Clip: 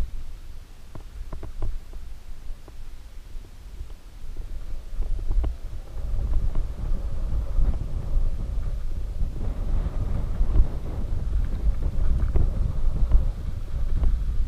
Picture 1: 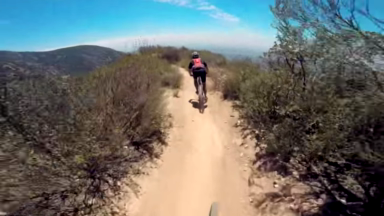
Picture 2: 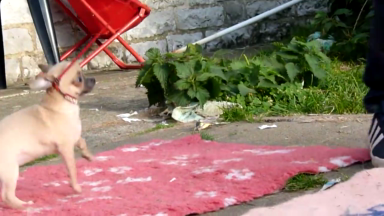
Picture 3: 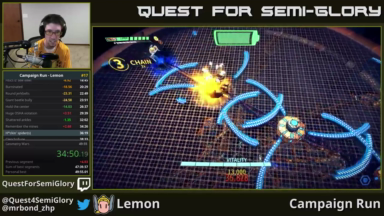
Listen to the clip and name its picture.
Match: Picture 1